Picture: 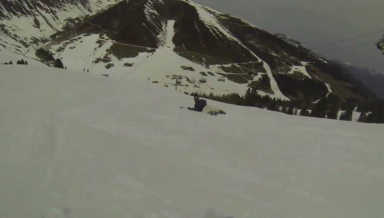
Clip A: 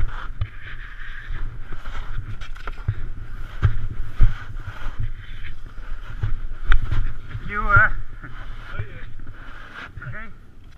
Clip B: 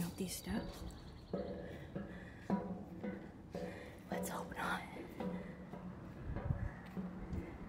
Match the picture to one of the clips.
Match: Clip A